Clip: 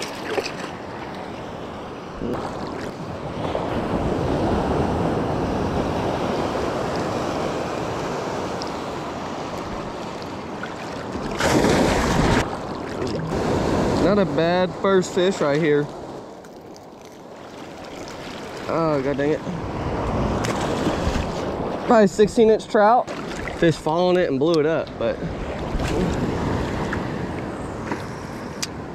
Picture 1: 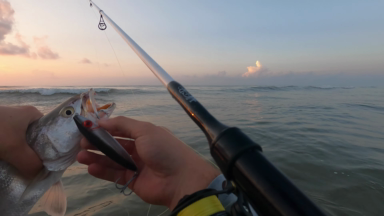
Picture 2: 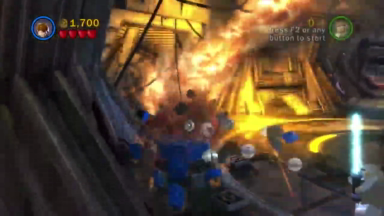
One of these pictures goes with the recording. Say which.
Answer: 1